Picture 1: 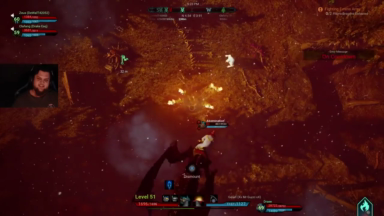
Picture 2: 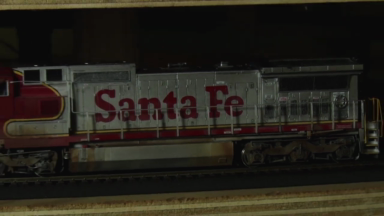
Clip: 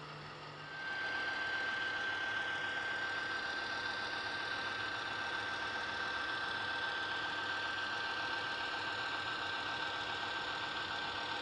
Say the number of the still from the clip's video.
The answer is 2